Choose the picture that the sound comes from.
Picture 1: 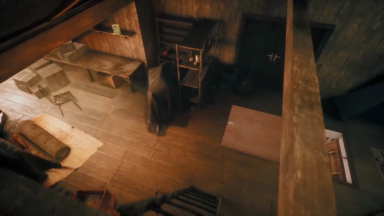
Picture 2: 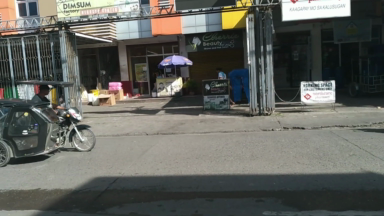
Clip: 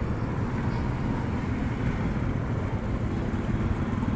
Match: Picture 2